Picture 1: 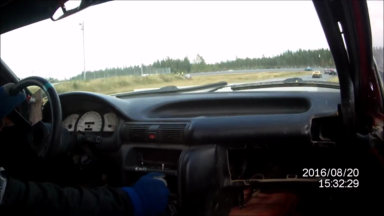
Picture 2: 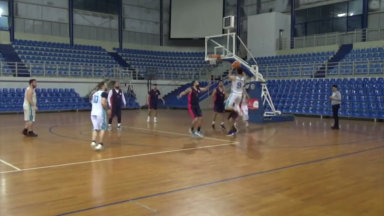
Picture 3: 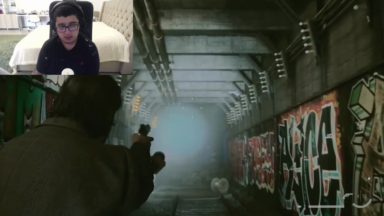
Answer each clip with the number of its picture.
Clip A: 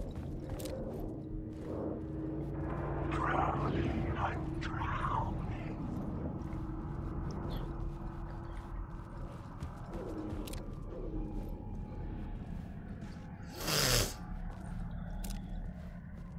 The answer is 3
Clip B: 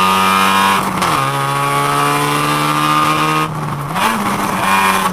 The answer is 1